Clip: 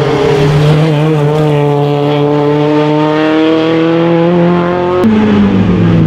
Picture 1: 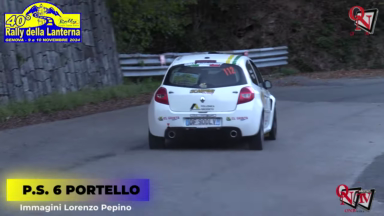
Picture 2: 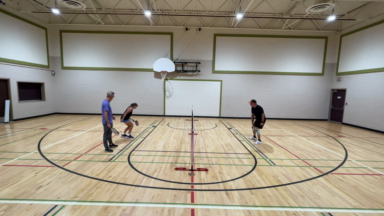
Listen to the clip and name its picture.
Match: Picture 1